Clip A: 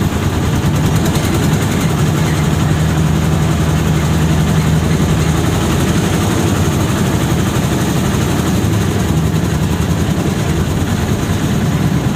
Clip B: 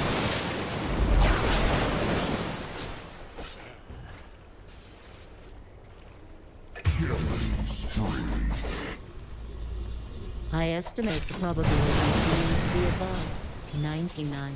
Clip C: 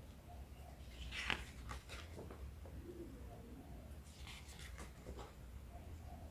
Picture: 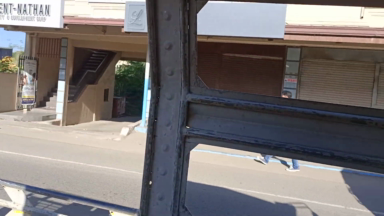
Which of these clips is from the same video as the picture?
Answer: A